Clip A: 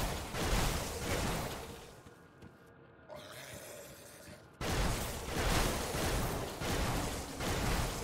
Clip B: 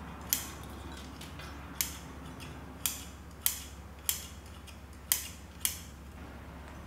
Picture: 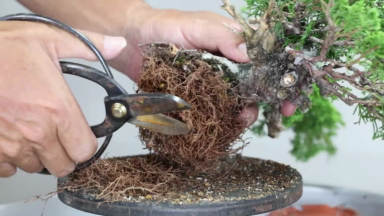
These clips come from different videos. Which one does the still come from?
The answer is B